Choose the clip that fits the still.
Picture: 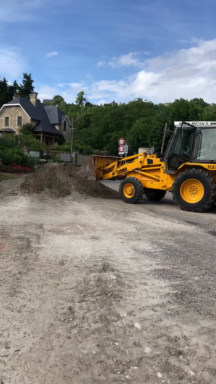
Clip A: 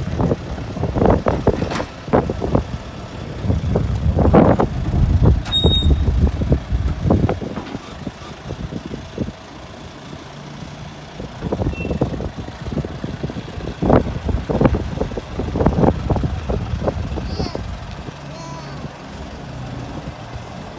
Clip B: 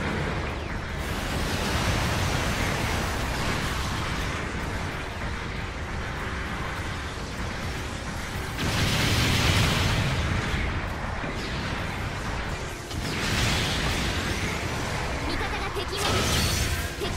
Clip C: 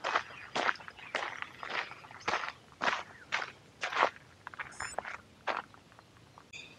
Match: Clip A